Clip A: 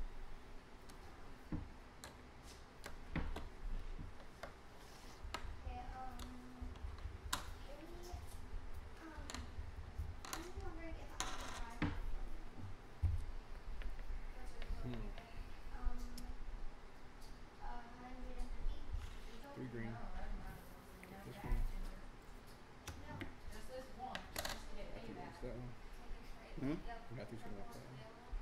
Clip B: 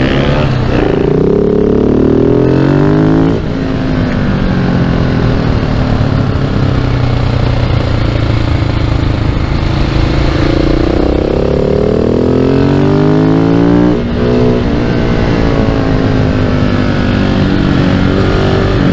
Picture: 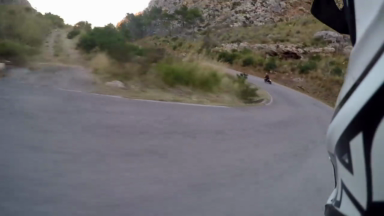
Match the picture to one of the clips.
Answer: B